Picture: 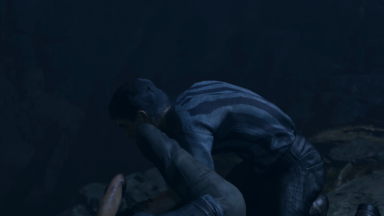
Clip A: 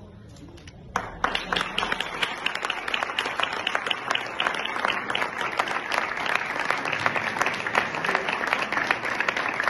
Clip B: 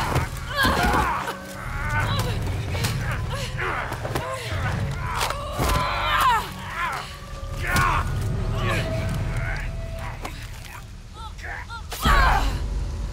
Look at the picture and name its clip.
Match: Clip B